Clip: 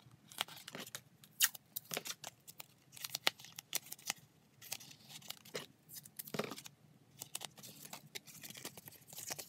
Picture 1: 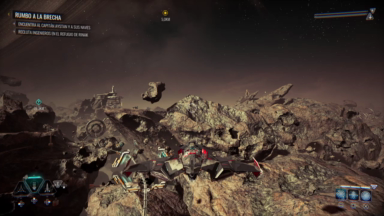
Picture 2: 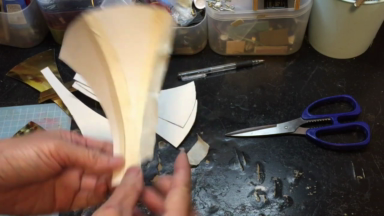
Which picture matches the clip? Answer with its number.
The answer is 2